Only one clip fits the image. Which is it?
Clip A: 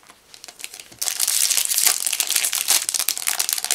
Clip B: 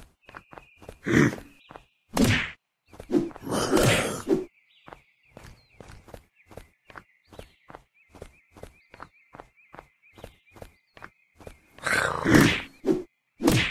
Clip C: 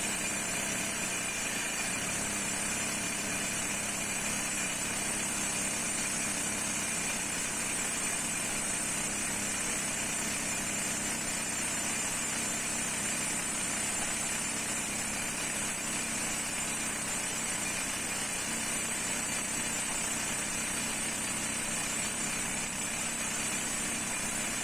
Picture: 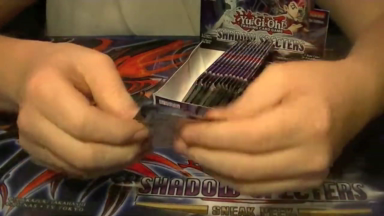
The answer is A